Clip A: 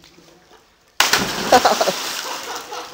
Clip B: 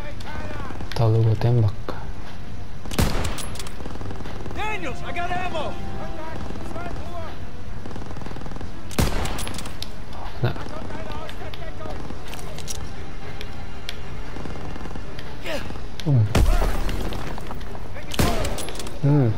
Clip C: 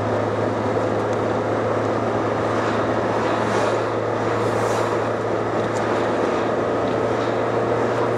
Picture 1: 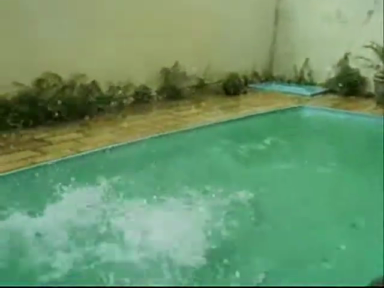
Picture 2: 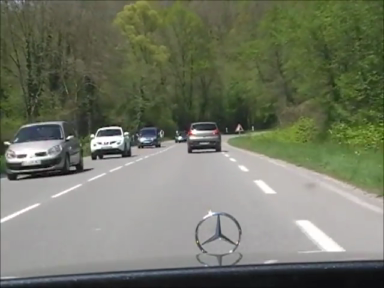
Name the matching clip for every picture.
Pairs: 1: A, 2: C